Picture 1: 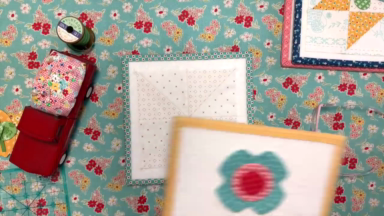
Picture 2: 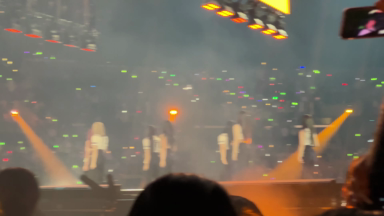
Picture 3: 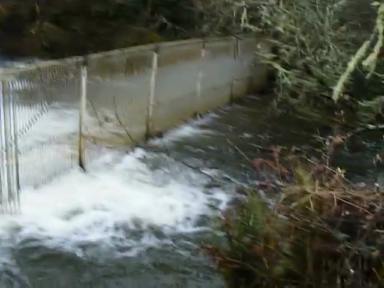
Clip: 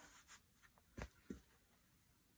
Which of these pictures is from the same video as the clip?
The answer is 1